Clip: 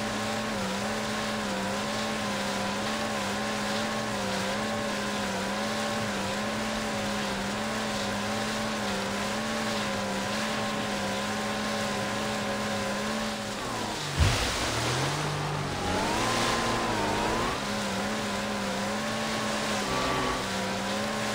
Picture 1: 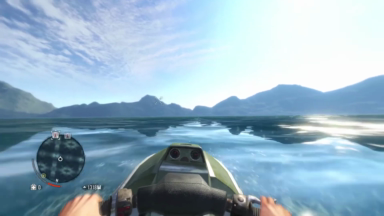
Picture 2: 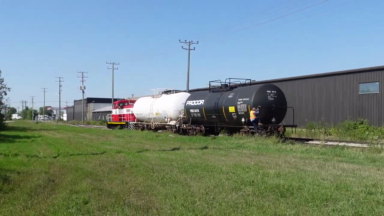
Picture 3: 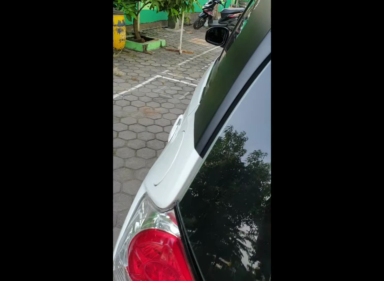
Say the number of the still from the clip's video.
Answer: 1